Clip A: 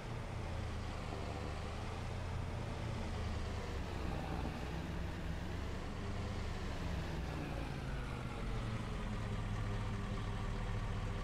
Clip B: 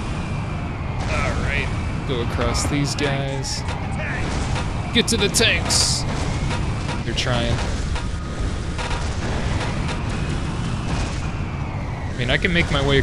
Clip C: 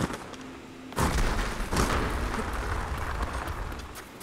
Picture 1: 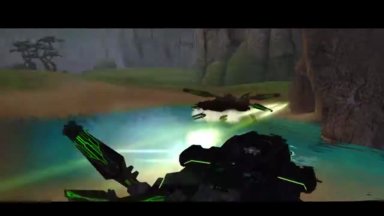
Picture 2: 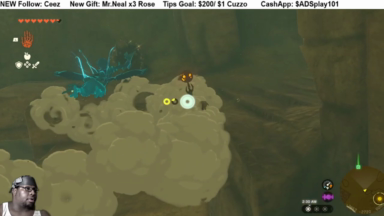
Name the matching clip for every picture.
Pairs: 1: B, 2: C